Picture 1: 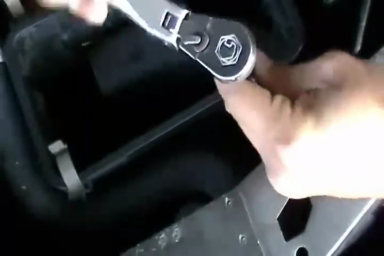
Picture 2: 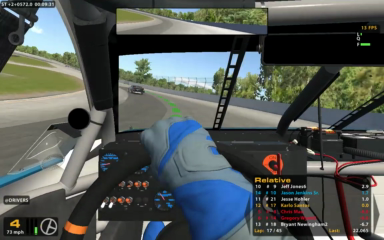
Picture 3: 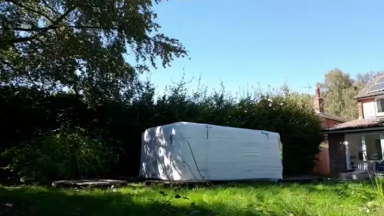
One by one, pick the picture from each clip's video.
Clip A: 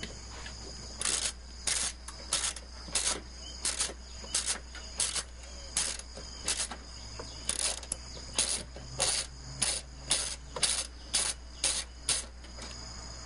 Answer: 1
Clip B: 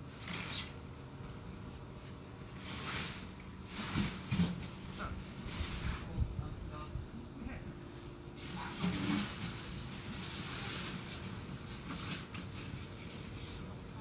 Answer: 3